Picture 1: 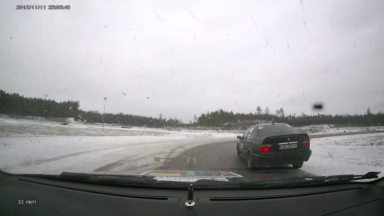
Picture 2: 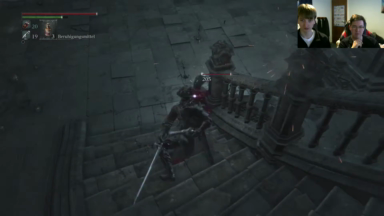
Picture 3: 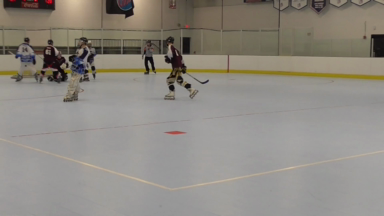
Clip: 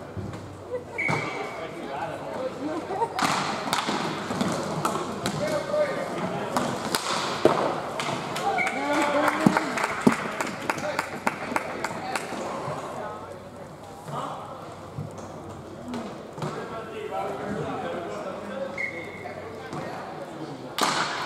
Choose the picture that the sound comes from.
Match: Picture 3